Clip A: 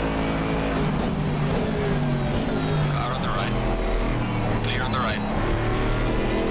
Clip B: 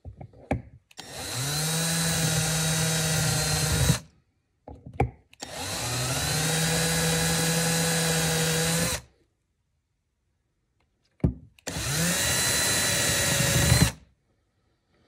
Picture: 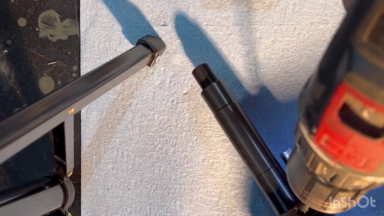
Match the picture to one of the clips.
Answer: B